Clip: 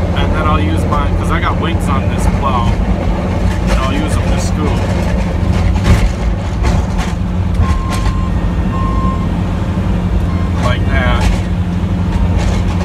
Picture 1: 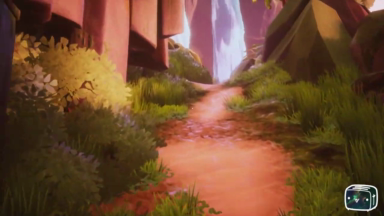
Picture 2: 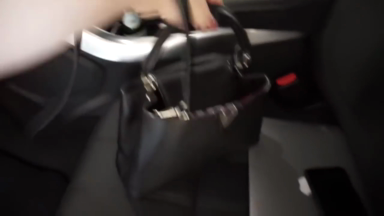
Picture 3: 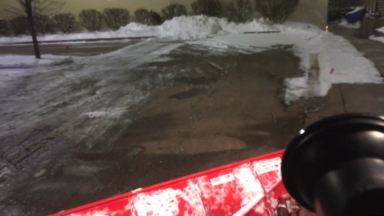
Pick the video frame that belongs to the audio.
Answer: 3